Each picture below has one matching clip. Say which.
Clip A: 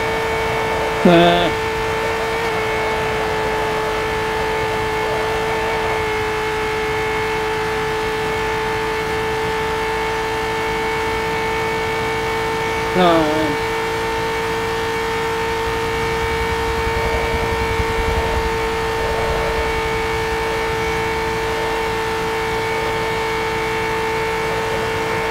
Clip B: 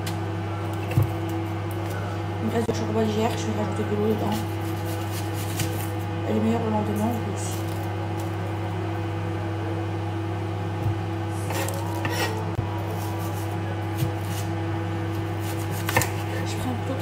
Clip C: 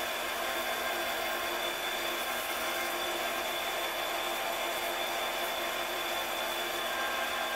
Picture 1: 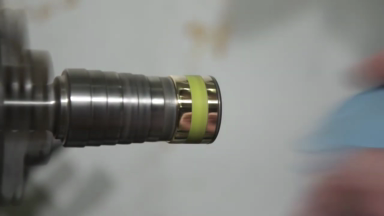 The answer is C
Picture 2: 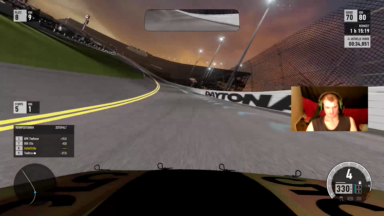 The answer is A